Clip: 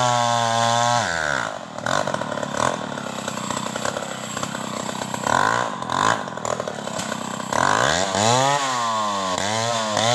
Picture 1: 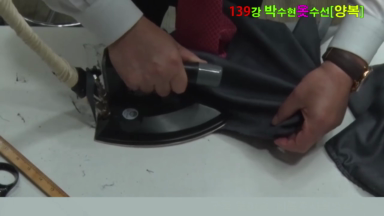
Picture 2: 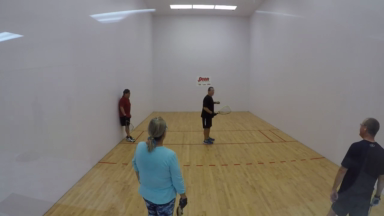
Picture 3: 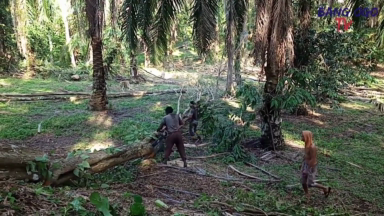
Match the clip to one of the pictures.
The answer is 3